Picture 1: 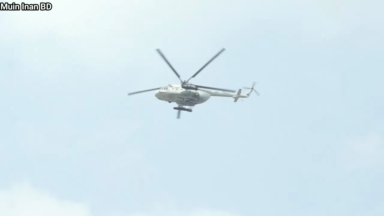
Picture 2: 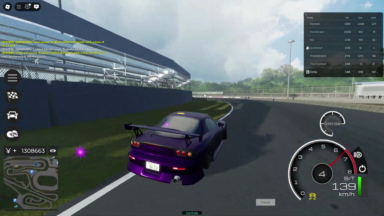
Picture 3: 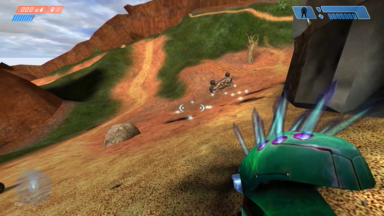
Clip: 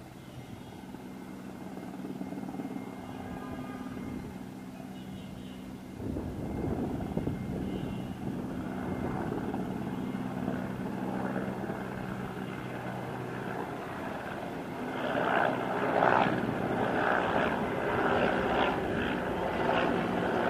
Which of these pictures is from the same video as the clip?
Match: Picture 1